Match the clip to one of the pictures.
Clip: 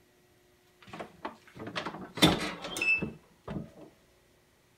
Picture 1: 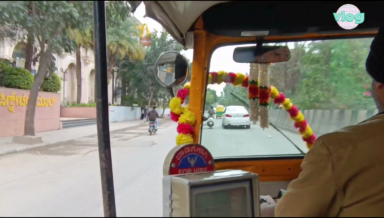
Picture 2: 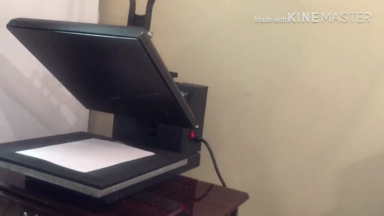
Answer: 2